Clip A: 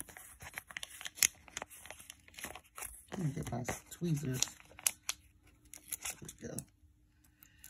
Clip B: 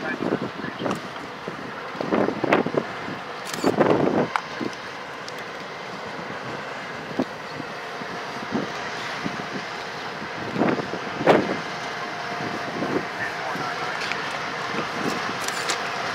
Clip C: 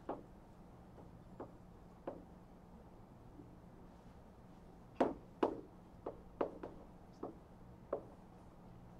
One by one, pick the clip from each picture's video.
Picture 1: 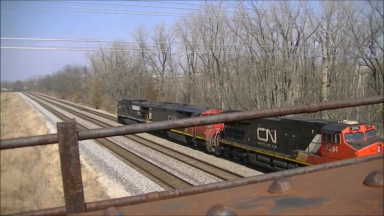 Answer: B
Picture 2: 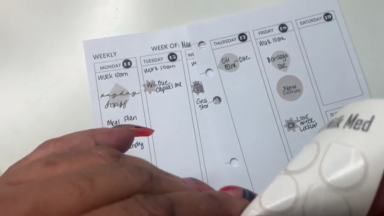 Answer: A